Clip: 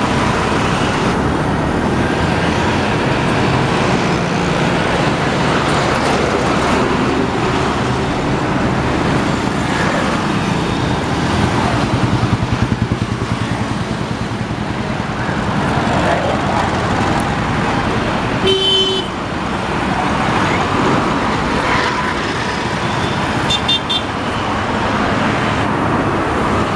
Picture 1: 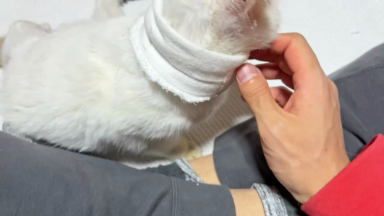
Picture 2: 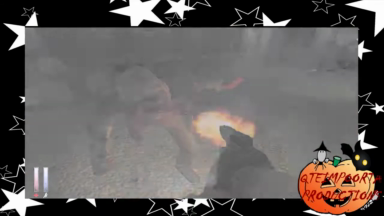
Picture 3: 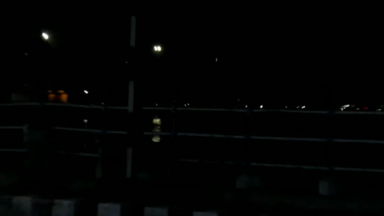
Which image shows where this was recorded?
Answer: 3